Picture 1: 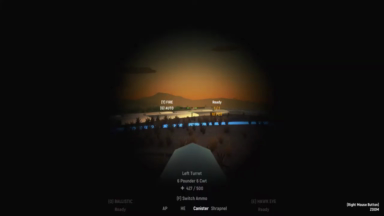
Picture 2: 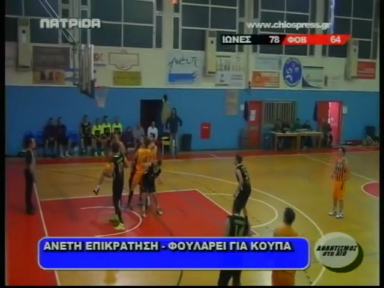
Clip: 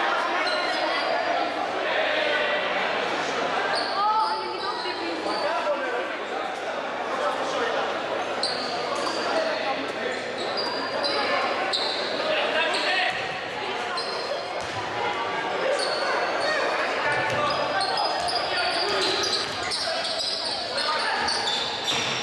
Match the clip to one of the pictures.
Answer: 2